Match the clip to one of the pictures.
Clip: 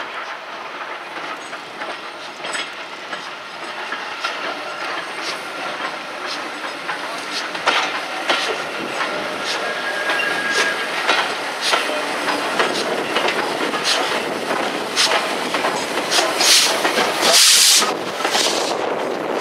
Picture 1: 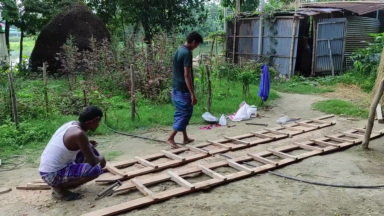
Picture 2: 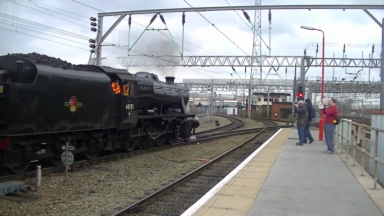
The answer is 2